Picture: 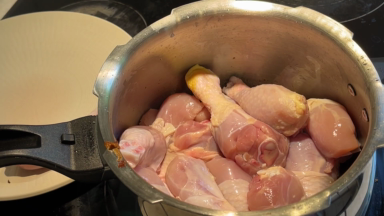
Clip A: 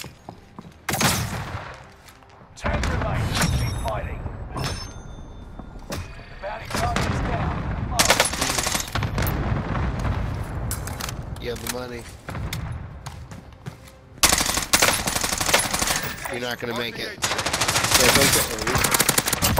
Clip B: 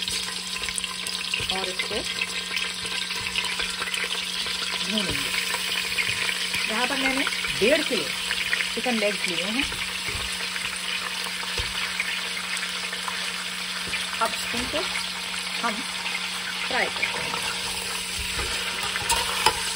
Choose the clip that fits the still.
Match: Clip B